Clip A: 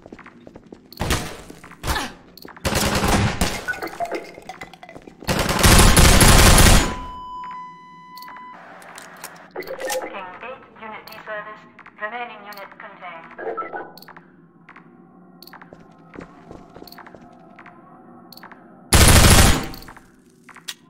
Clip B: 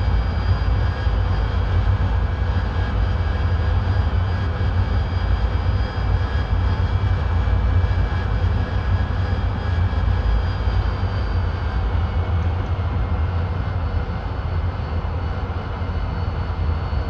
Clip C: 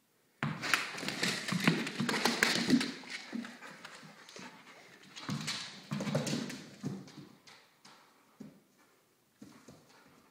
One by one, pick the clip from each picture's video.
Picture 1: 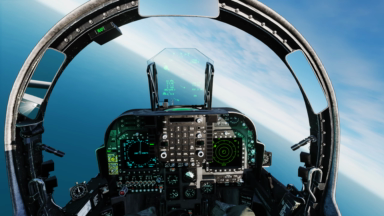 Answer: B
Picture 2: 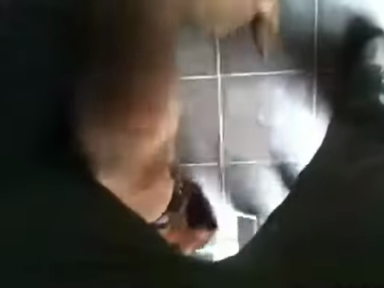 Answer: C